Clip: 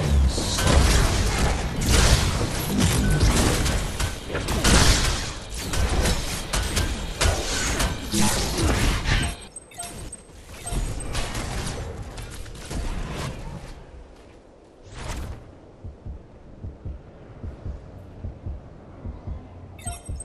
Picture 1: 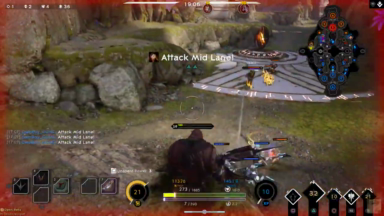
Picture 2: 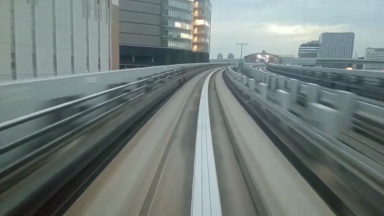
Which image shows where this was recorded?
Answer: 1